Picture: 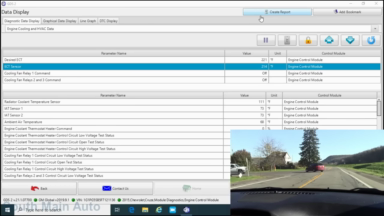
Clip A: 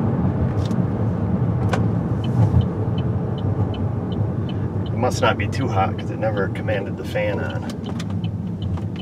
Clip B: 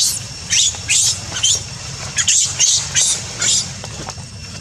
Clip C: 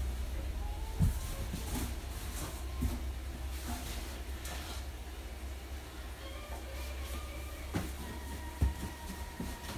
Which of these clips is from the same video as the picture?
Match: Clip A